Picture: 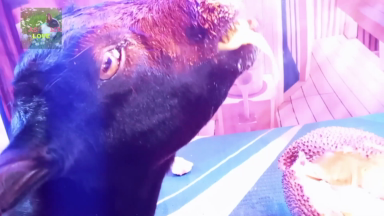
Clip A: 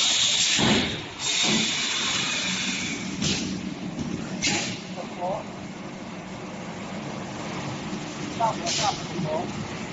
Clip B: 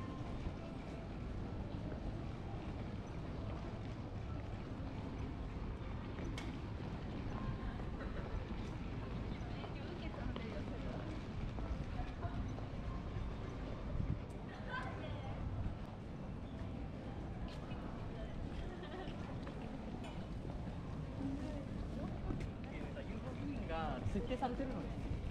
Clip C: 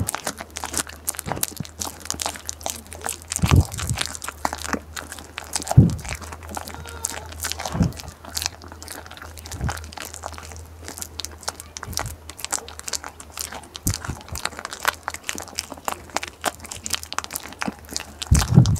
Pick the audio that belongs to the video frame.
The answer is C